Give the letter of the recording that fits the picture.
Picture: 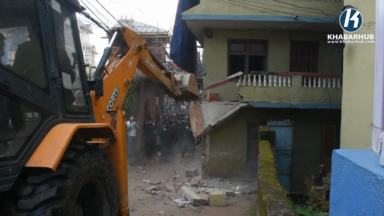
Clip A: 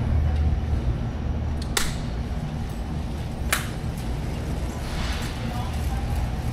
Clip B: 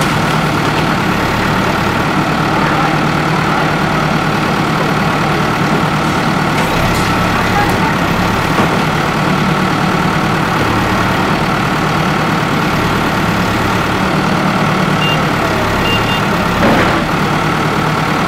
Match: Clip B